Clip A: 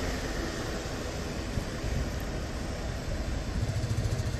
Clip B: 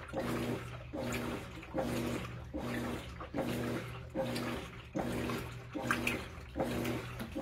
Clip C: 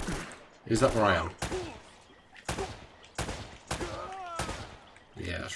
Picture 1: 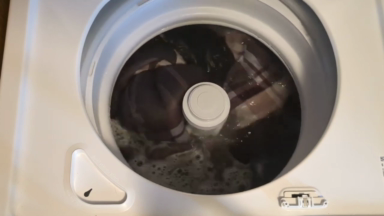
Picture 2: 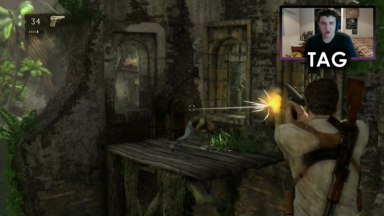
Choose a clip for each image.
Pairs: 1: B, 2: C